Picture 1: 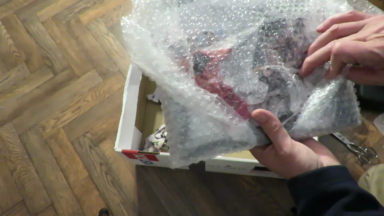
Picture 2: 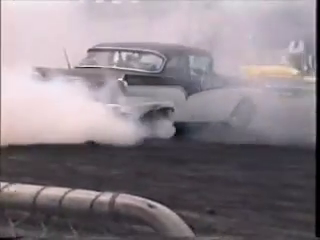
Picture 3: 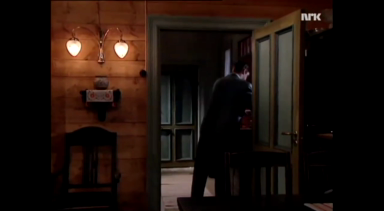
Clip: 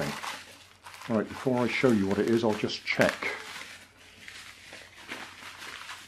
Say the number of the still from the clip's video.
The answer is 1